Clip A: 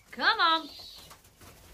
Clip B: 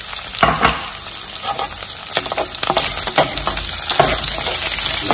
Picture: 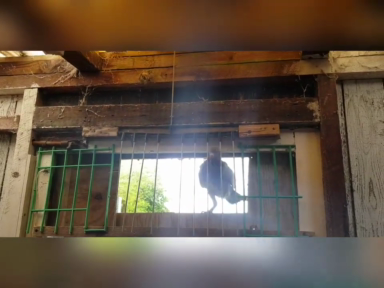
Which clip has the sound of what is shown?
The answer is A